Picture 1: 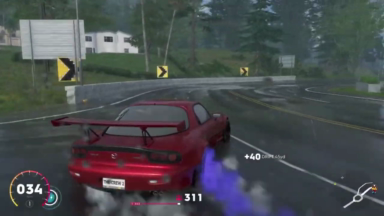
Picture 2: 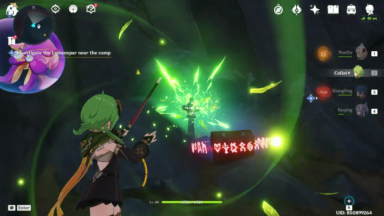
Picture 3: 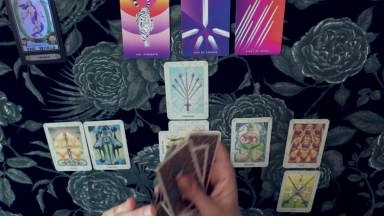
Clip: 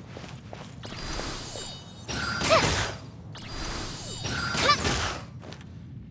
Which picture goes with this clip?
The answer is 2